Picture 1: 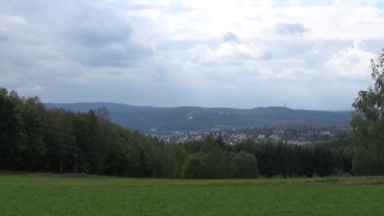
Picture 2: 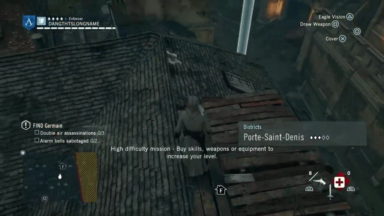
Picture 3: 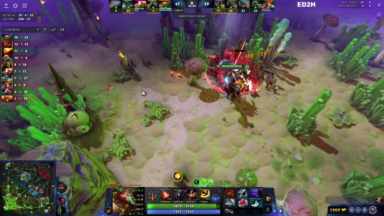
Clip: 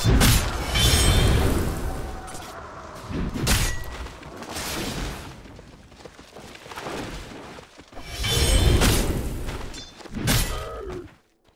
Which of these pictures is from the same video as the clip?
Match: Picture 3